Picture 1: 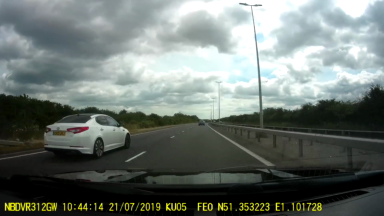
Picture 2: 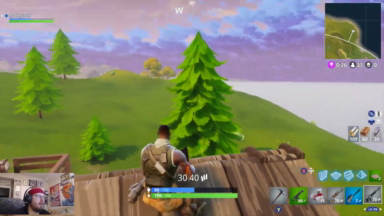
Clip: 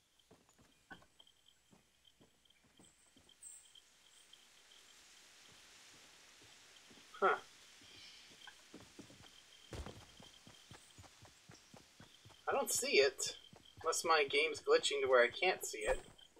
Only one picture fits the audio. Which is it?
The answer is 2